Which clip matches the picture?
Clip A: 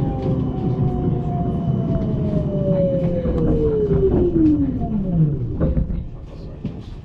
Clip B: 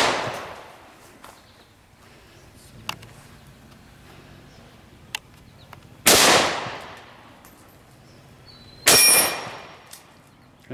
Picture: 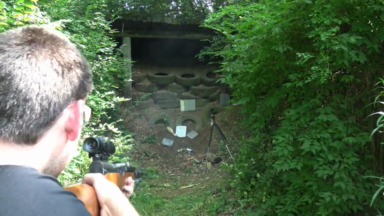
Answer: B